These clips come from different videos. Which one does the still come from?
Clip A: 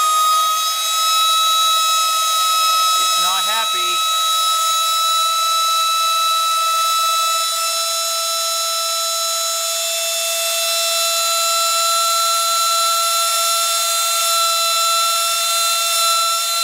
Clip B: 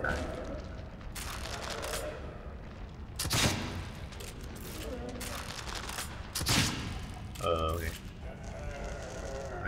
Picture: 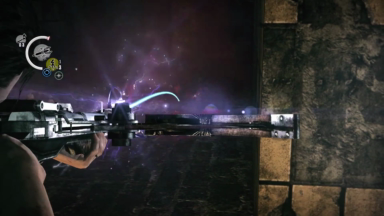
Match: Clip B